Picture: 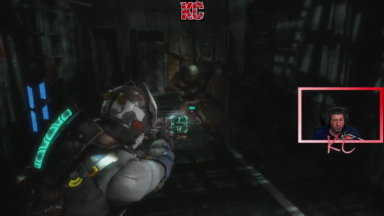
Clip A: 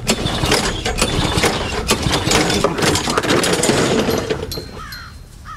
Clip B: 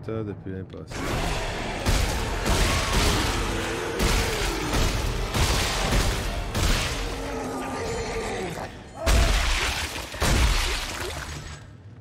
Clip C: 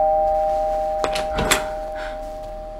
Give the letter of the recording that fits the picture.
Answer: B